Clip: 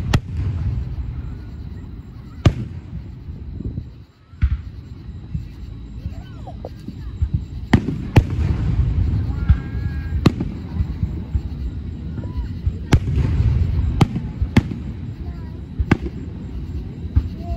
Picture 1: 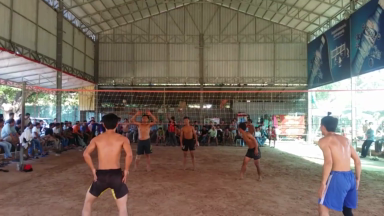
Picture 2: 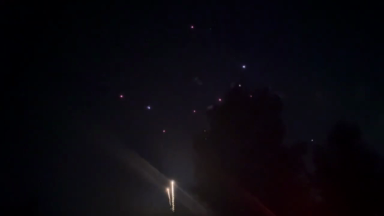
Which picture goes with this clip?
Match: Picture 2